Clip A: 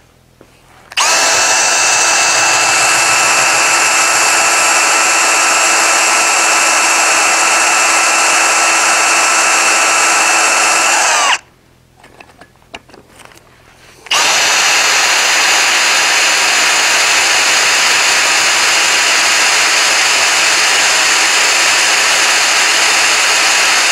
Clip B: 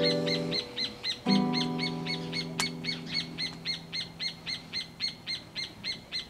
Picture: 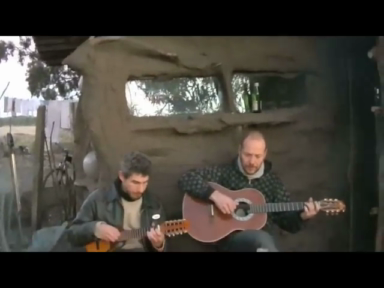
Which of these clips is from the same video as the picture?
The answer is B